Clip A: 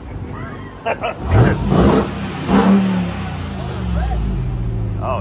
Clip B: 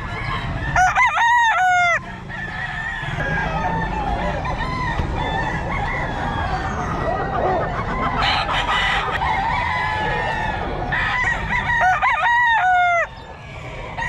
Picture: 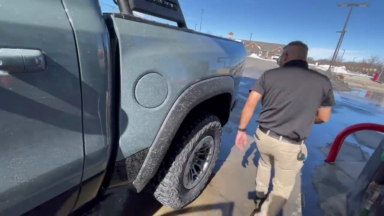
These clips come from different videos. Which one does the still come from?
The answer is A